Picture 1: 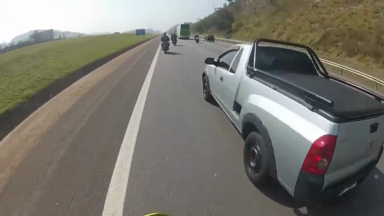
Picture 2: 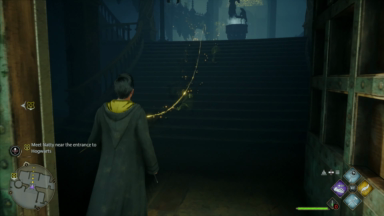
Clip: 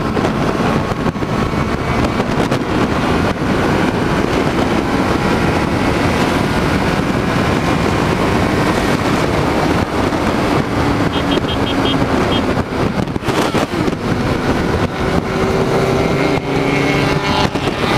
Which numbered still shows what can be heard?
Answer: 1